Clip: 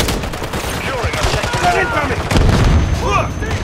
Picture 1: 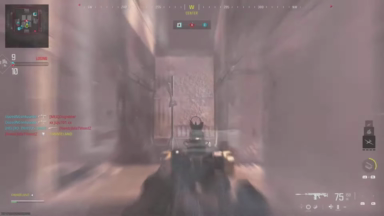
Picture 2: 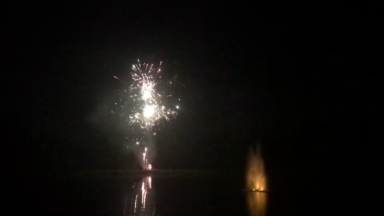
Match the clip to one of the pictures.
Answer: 1